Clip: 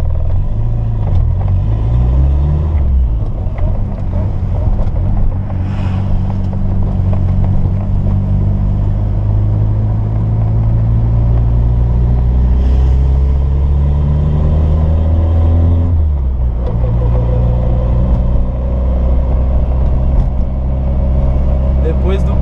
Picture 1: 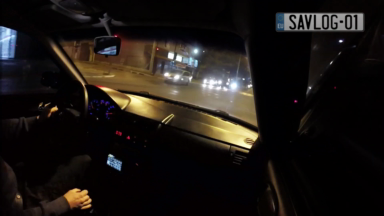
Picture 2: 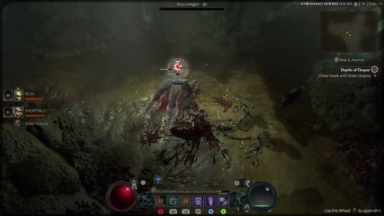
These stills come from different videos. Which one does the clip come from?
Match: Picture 1